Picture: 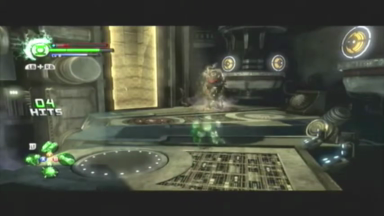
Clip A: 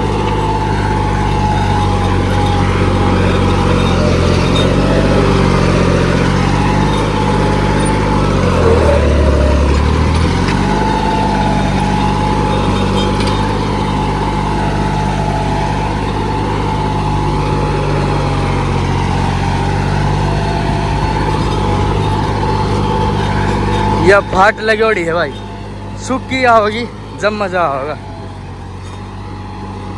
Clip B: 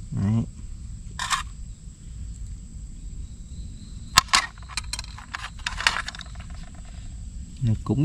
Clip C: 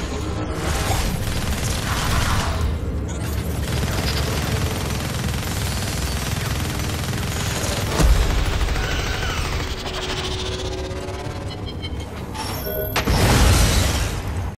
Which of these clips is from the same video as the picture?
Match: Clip C